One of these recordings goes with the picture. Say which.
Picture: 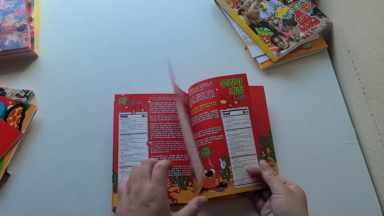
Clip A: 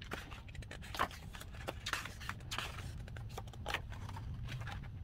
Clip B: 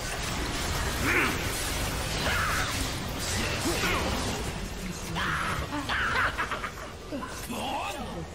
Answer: A